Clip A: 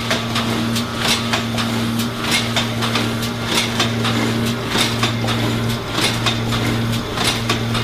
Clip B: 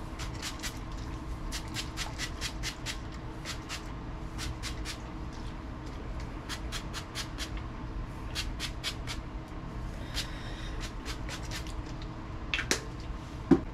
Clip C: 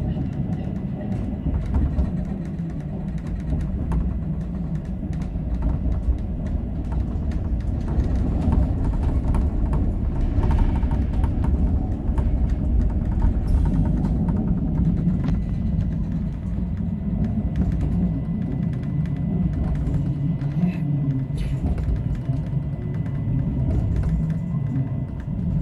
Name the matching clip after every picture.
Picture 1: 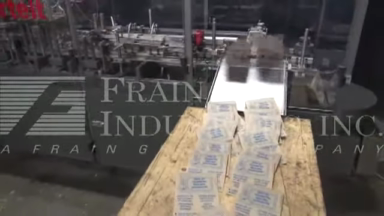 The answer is A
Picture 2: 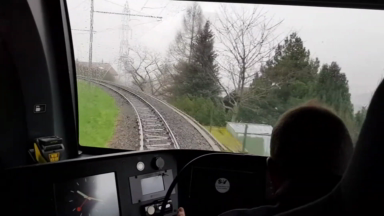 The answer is C